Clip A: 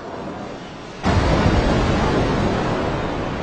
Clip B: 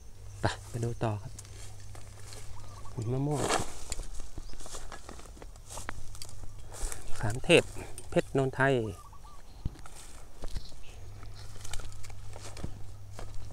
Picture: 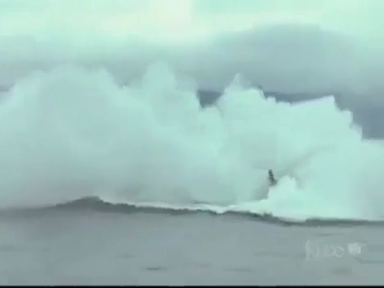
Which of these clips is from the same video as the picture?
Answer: A